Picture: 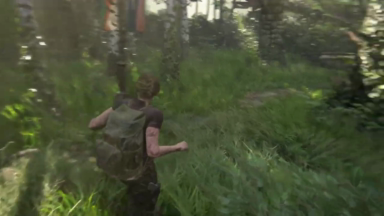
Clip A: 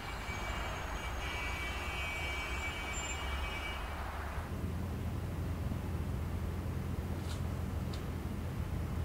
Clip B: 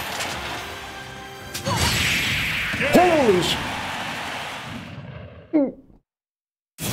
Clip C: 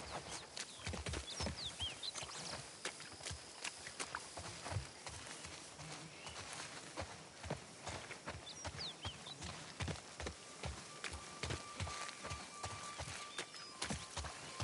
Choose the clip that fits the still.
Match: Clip C